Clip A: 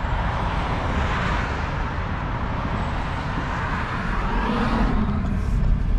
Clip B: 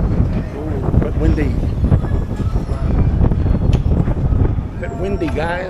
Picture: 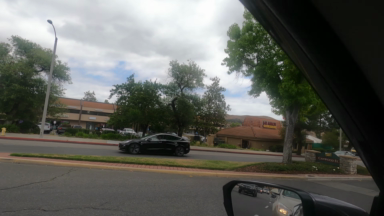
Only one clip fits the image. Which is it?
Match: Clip A